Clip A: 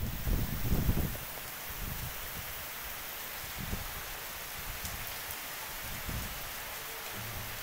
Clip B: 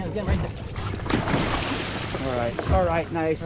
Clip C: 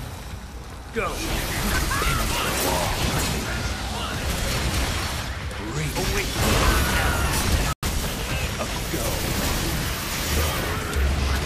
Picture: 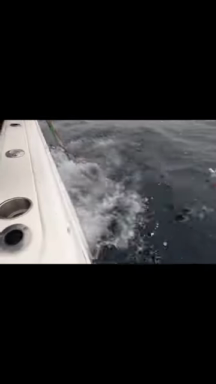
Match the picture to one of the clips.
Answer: B